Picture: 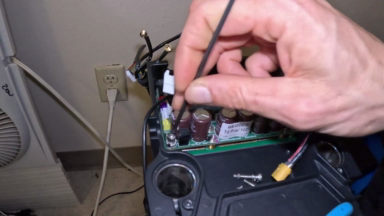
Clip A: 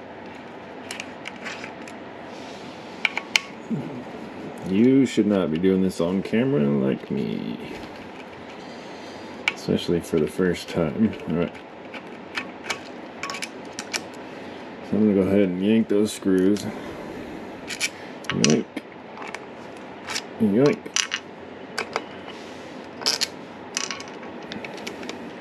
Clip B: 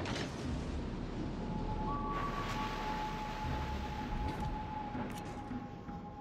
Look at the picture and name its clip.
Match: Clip A